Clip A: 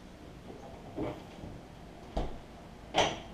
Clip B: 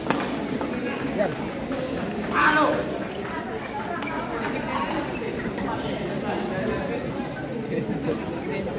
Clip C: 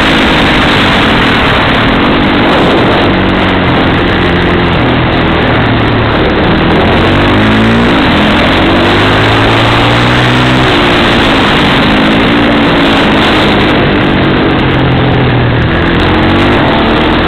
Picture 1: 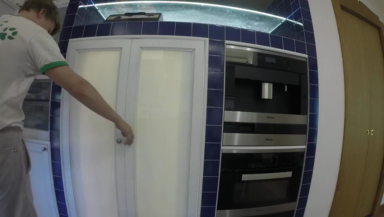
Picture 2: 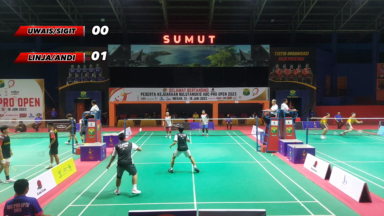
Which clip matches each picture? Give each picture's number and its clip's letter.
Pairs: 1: A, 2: B